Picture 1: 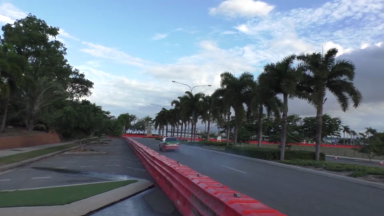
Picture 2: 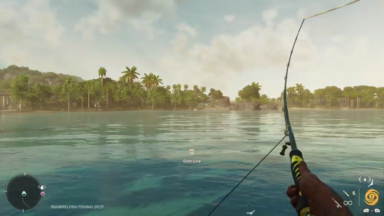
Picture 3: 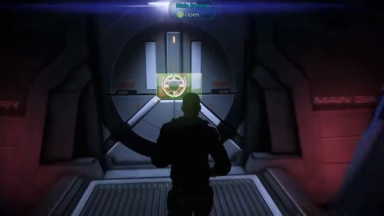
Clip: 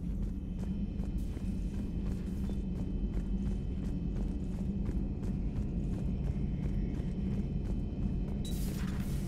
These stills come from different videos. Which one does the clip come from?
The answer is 3